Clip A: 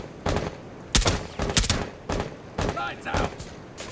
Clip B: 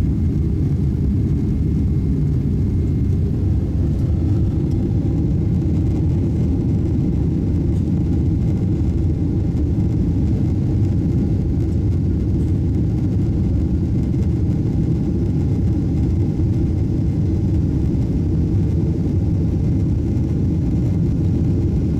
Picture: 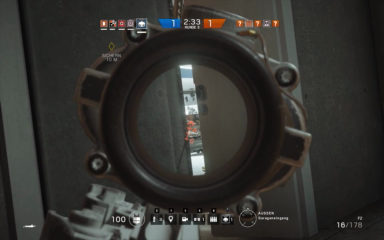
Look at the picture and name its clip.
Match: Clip A